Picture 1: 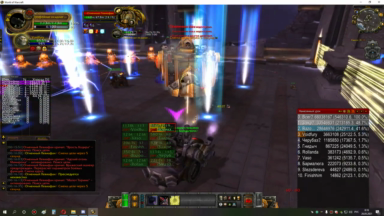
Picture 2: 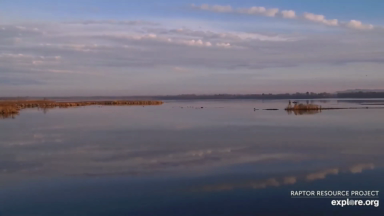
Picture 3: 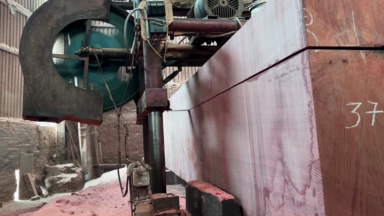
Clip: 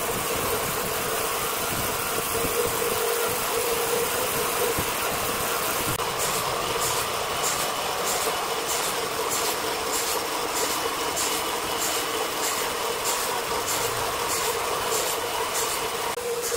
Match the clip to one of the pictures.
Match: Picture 3